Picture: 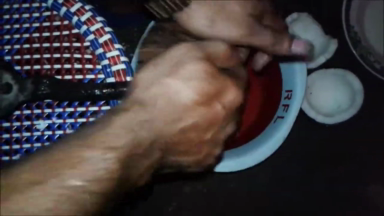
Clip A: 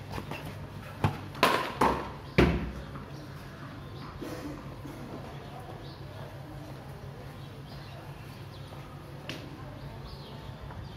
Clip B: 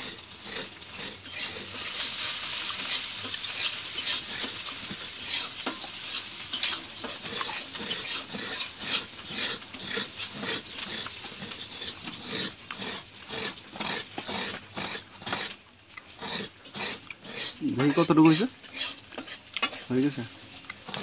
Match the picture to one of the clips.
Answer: B